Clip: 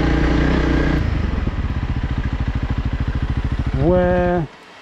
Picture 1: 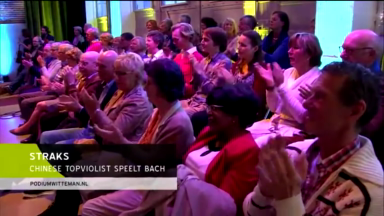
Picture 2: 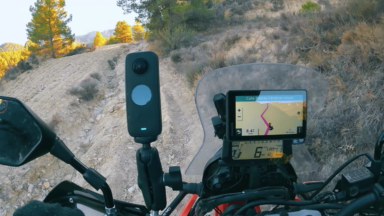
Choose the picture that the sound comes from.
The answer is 2